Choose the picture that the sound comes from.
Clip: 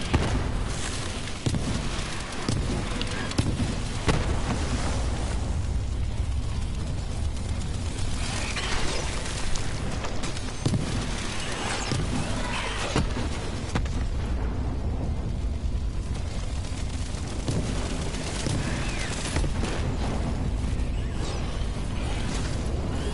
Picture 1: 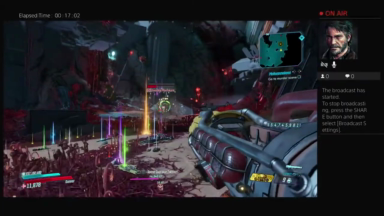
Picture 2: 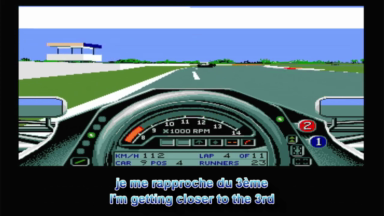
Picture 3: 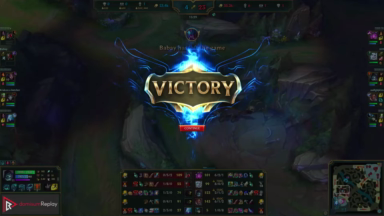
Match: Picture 1